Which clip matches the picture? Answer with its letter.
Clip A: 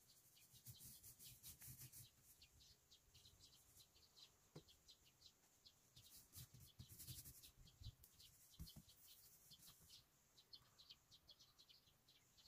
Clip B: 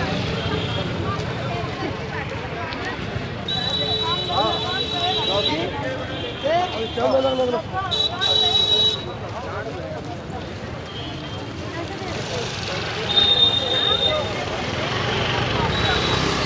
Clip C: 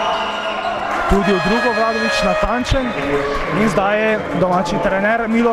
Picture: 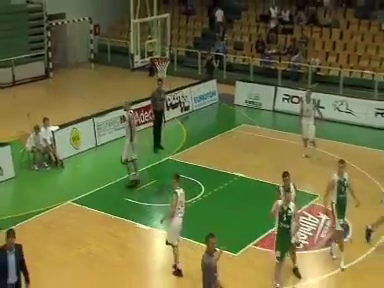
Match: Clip C